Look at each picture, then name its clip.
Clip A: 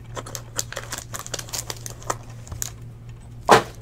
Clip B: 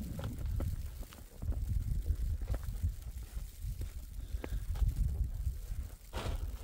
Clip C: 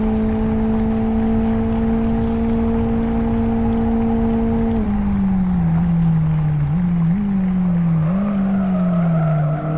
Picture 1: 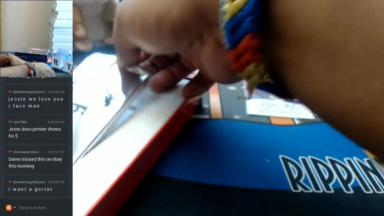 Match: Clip A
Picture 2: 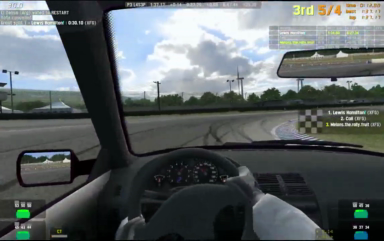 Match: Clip C